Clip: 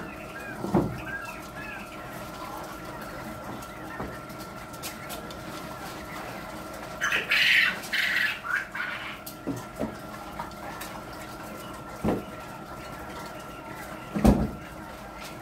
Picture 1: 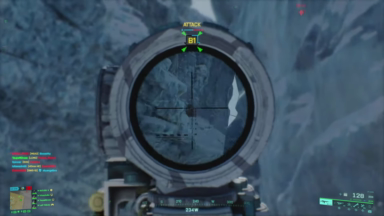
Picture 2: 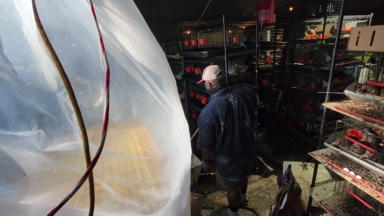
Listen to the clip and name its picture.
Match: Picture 2